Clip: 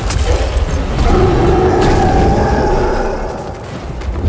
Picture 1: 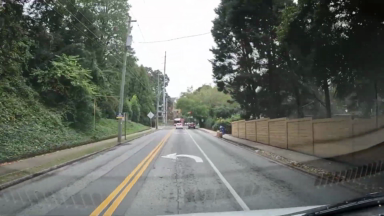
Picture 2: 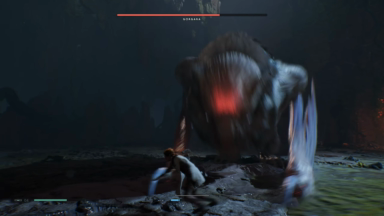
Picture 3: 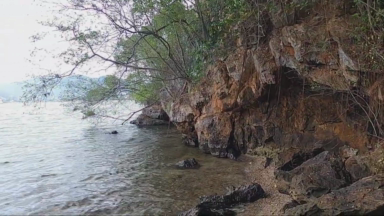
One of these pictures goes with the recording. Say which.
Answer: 2